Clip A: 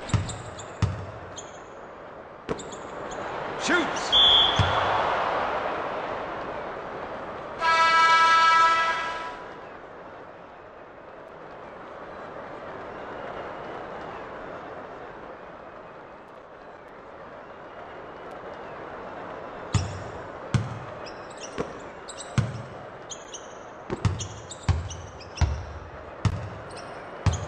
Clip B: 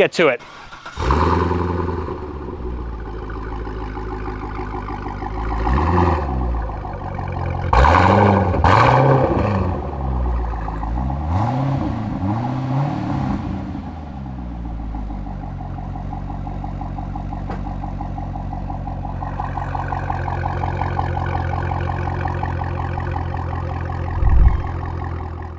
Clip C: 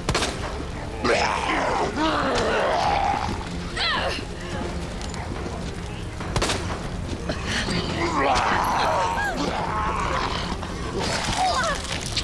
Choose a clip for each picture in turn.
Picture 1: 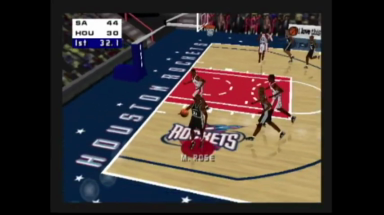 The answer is A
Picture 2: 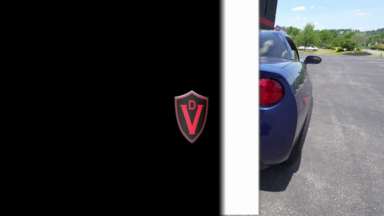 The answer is B